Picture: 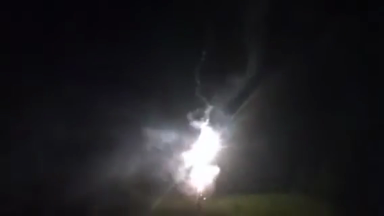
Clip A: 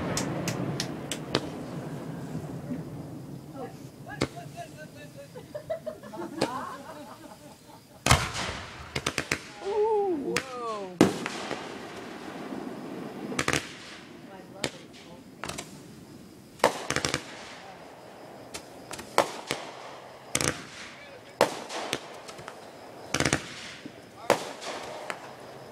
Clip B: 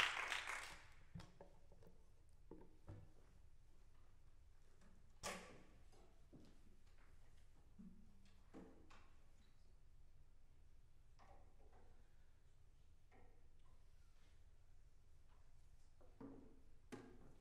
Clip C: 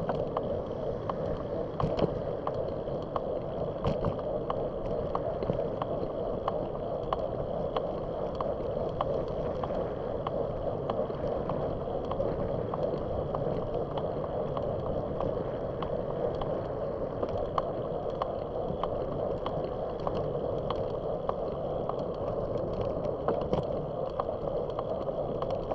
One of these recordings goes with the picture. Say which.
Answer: A